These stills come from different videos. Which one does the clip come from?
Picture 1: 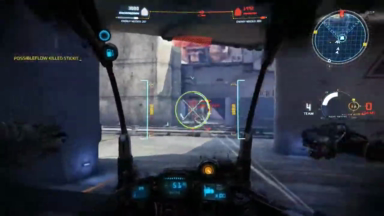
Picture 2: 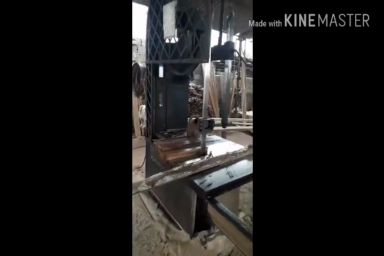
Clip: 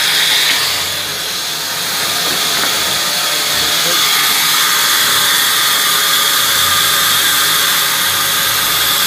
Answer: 2